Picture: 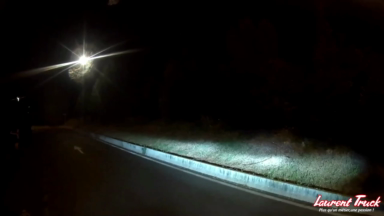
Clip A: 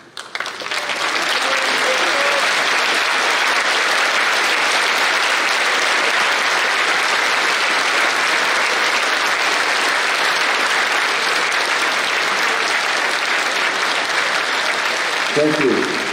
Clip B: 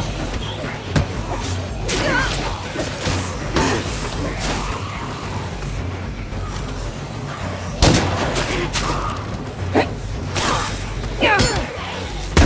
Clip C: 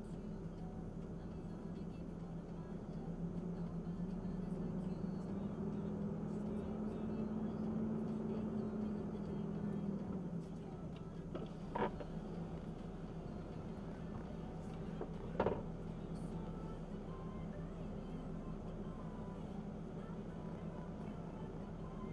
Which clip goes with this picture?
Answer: C